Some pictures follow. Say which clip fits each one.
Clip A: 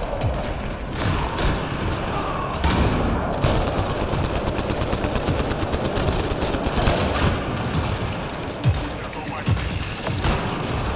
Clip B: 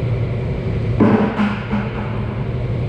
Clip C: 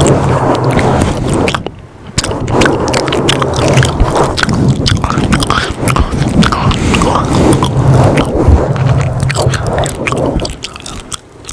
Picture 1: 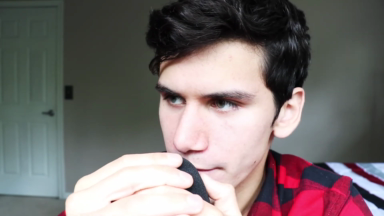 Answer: C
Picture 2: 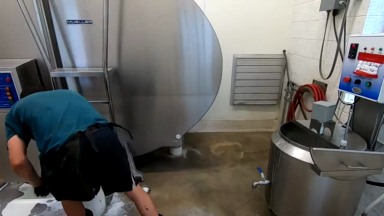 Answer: B